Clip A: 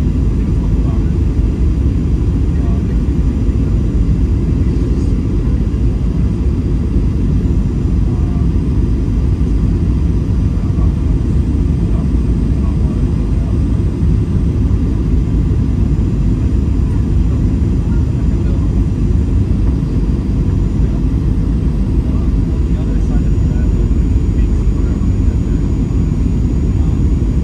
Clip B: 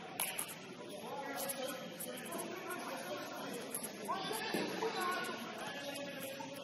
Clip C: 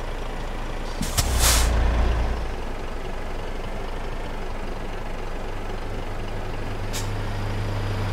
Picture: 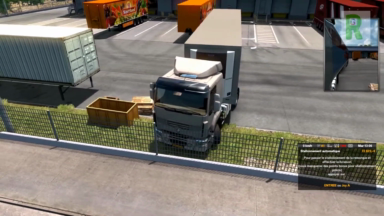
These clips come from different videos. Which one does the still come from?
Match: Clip C